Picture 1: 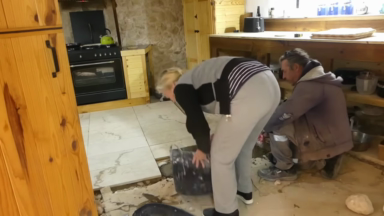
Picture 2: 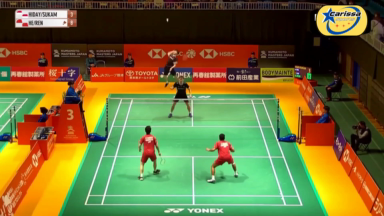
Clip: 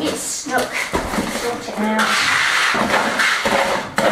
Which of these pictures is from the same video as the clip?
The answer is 1